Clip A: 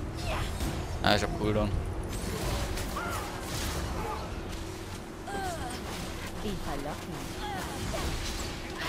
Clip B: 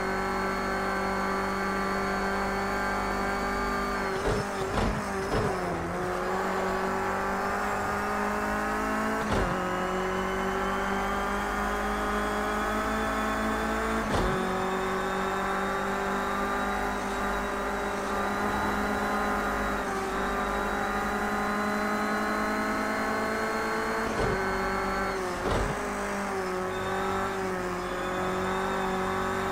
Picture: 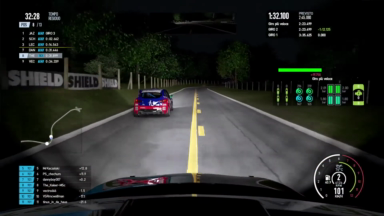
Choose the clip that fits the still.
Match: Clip B